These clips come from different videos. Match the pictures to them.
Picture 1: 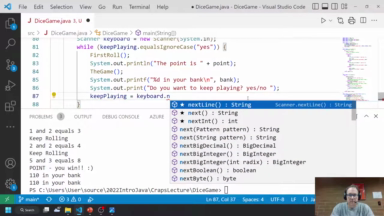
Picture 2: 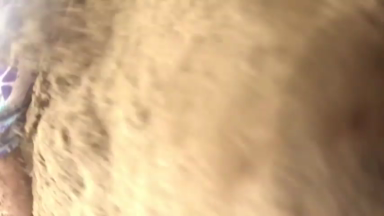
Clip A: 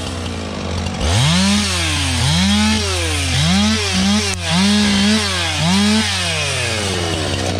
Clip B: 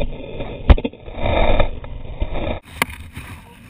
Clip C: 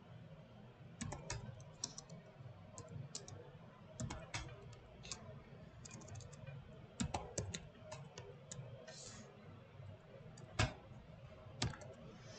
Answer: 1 C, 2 B